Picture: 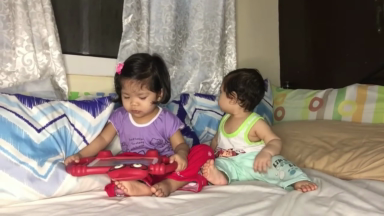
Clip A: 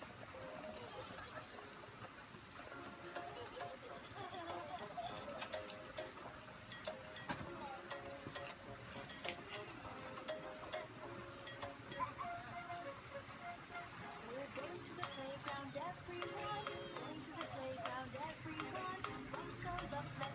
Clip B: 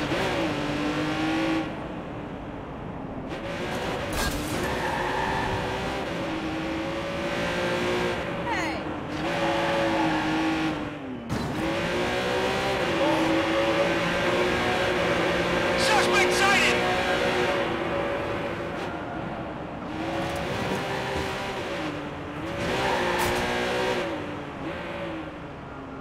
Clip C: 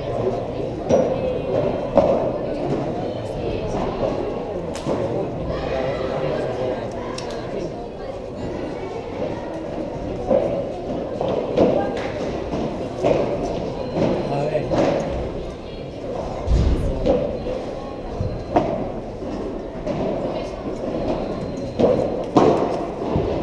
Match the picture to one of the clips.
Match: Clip A